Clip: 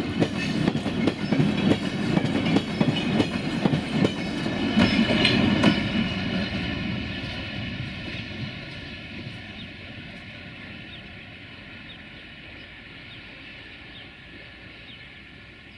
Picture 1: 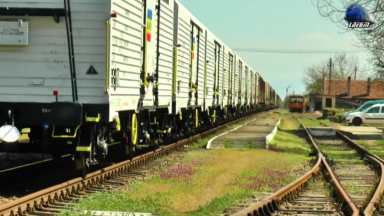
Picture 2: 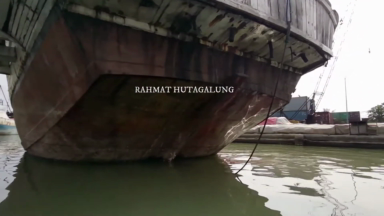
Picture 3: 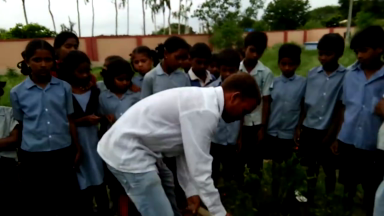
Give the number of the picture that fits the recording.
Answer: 1